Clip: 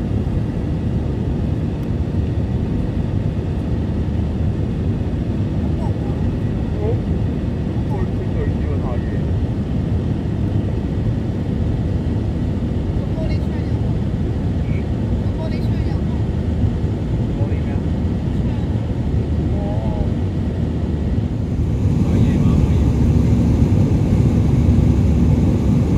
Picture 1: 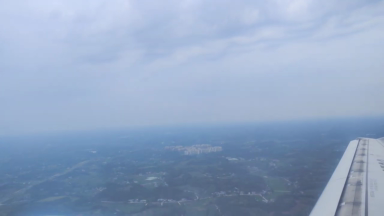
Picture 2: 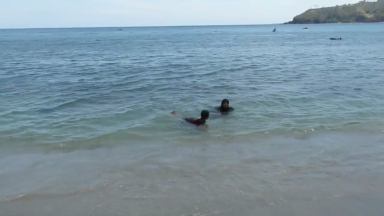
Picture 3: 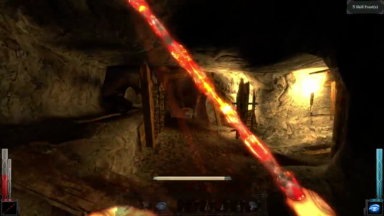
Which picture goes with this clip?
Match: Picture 1